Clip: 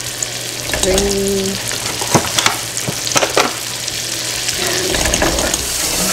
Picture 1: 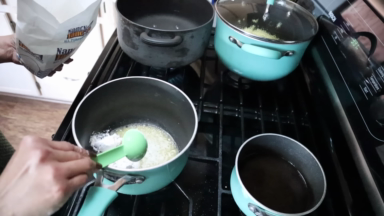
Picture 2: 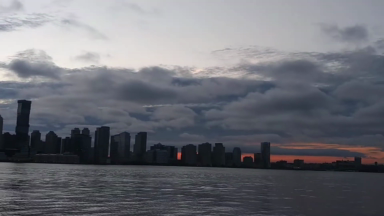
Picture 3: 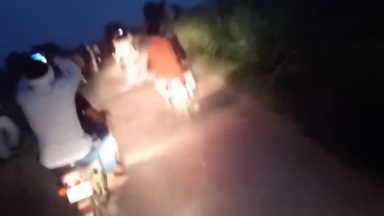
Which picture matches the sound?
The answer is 1